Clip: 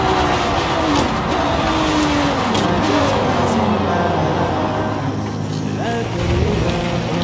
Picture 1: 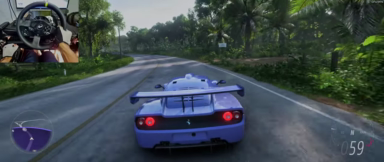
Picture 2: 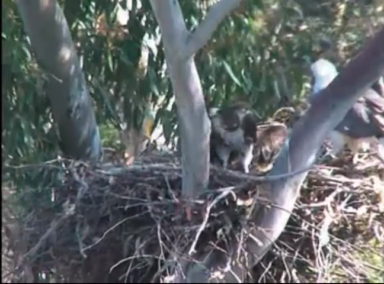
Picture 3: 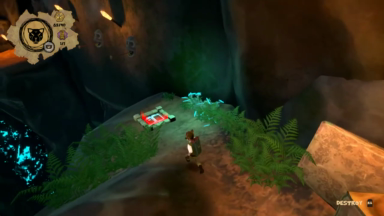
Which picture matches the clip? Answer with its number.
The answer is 1